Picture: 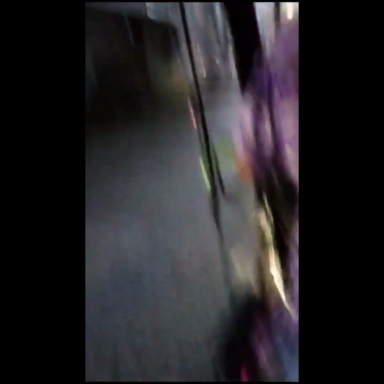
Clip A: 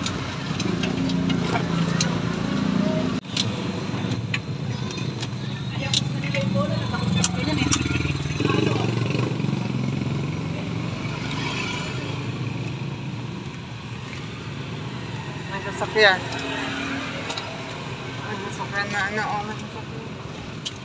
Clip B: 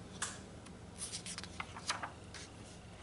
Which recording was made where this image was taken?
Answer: A